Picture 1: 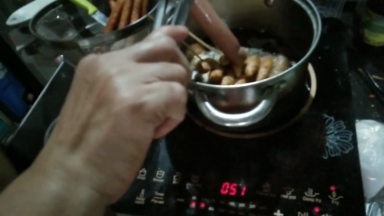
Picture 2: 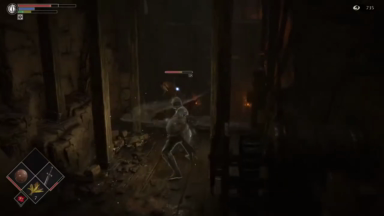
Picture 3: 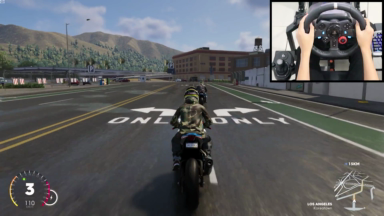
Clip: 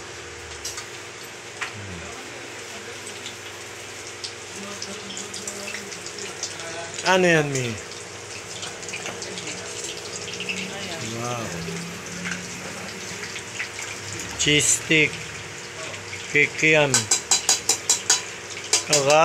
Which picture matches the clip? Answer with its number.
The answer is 1